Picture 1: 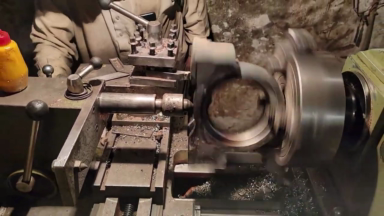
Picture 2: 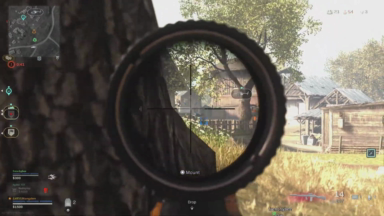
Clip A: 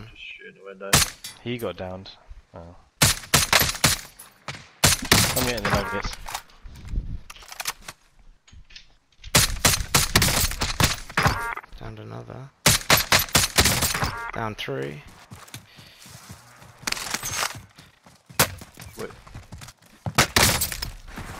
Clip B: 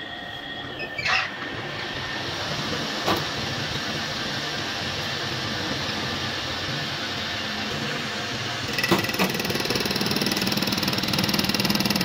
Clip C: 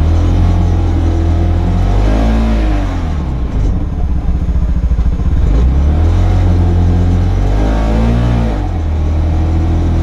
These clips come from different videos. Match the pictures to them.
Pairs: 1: B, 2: A